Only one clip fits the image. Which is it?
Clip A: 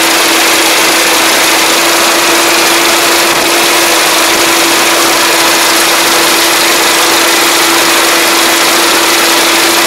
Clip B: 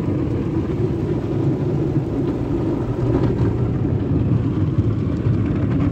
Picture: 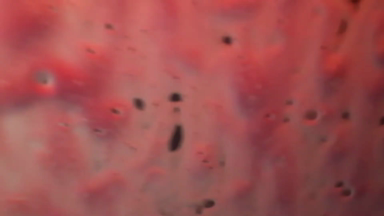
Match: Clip B